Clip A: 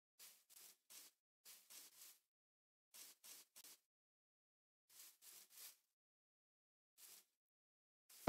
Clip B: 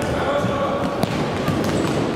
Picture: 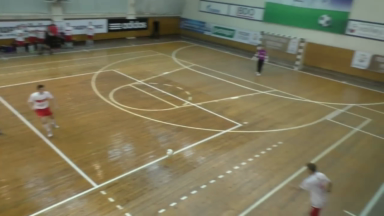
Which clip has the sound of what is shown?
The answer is B